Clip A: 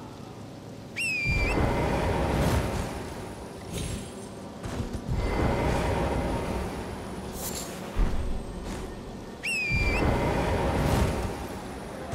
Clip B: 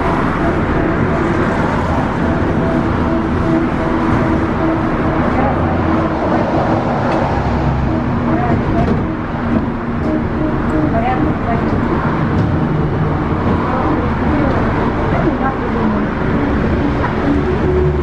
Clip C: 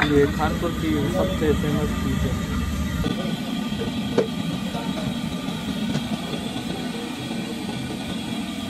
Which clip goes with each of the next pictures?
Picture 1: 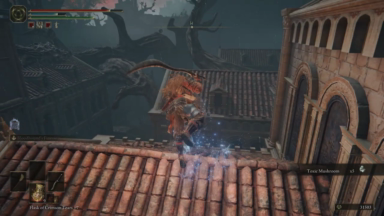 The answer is A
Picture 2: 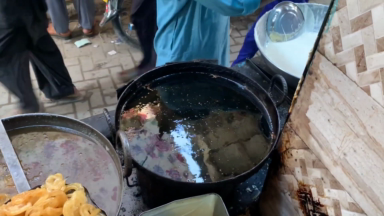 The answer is C